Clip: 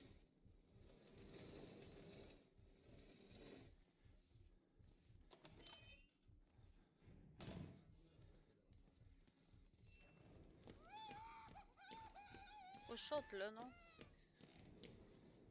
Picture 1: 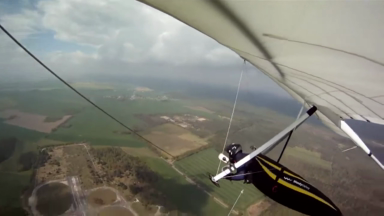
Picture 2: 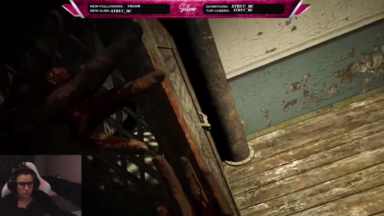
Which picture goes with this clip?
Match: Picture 2